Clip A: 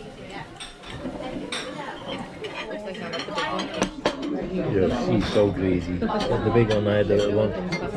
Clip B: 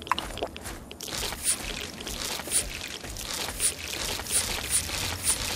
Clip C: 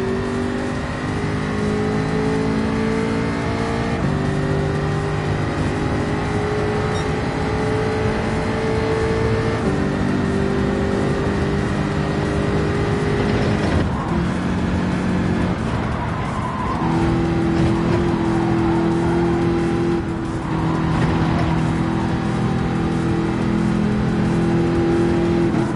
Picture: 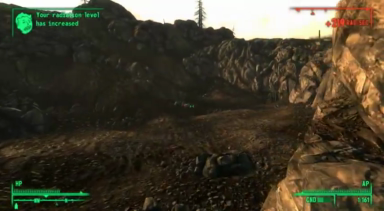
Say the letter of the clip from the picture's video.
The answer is B